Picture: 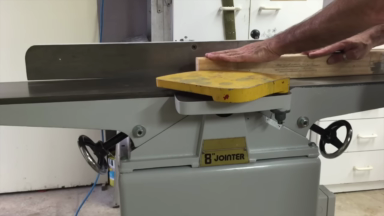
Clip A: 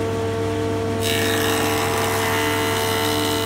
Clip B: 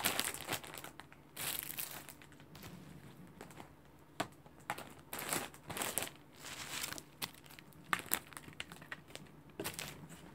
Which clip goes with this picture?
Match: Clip A